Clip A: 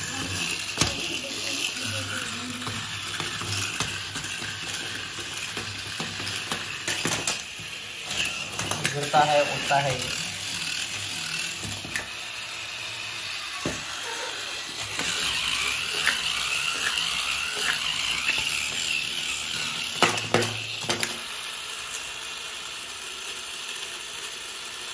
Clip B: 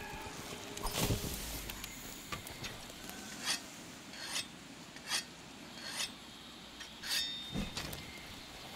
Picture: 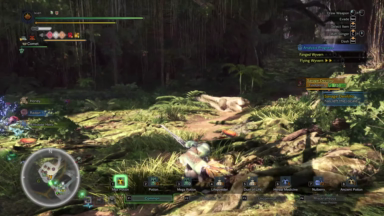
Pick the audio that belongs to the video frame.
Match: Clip B